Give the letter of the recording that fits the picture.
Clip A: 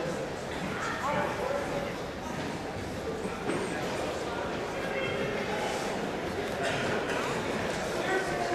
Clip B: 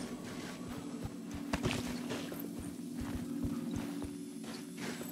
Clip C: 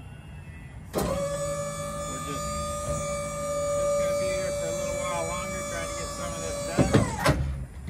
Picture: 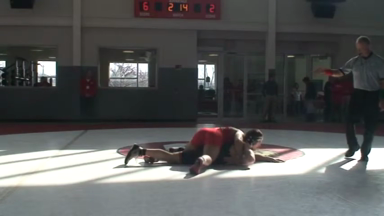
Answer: A